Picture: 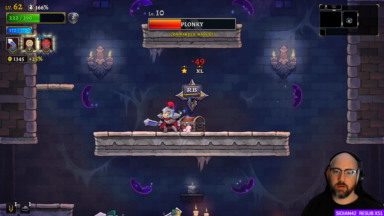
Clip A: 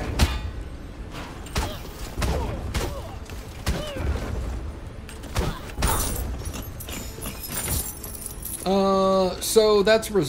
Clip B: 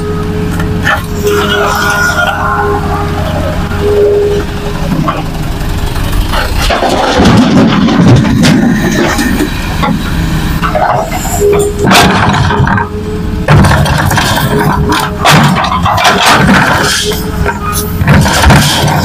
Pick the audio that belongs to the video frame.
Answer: A